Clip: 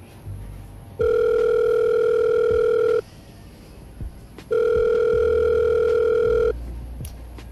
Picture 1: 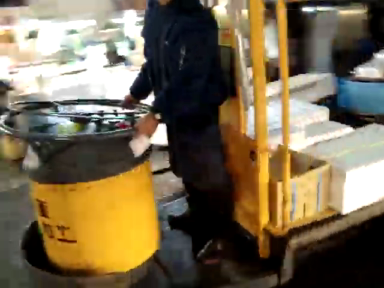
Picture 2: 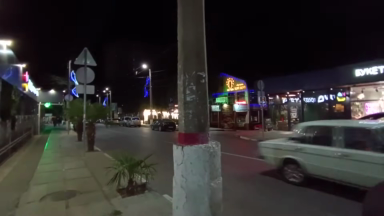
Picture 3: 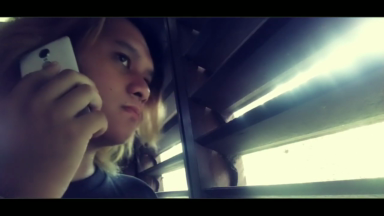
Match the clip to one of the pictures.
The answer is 3